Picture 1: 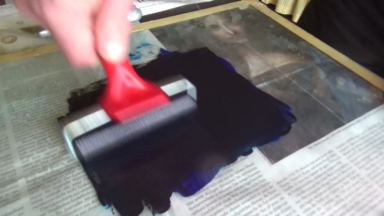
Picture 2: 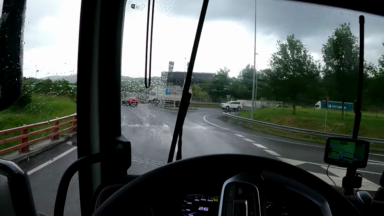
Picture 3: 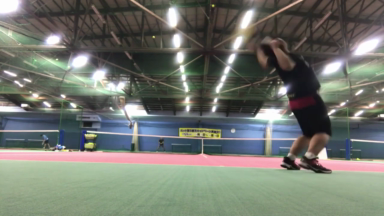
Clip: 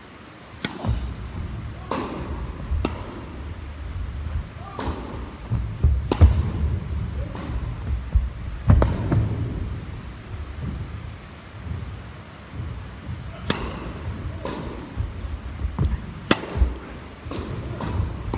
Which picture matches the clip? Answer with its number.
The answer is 3